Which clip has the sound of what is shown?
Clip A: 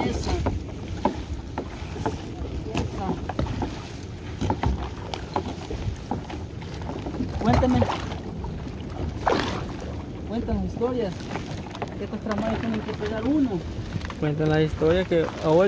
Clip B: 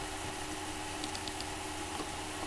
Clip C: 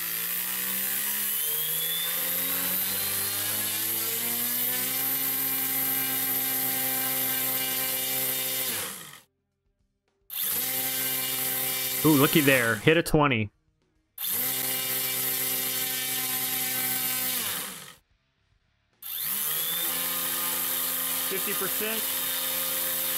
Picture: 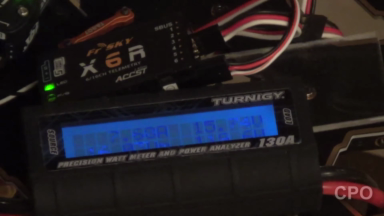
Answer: C